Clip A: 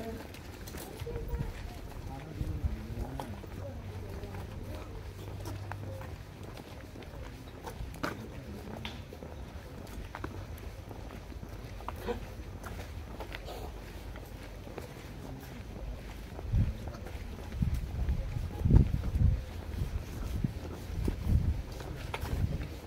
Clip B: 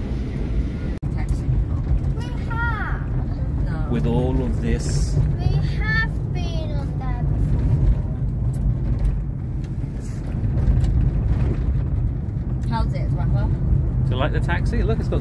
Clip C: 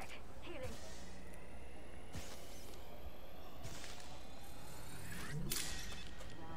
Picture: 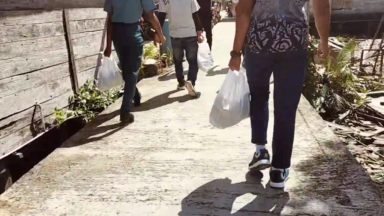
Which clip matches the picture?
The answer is A